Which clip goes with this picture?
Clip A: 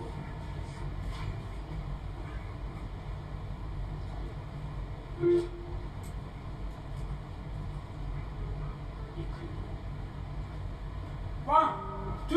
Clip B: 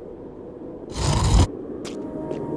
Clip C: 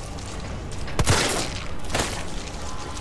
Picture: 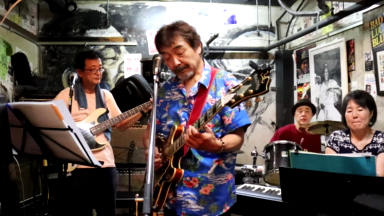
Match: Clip A